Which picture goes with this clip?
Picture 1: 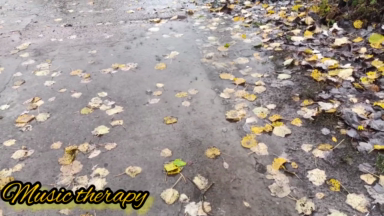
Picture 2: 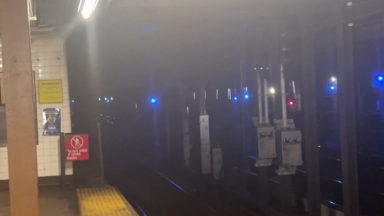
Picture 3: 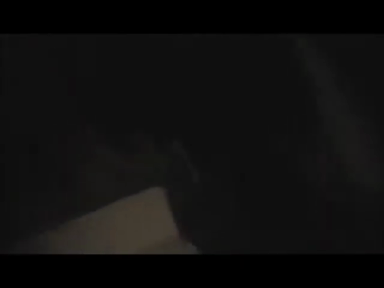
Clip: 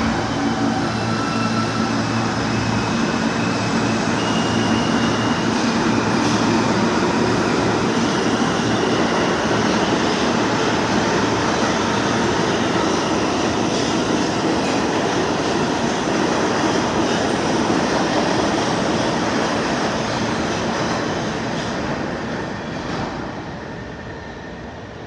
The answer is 2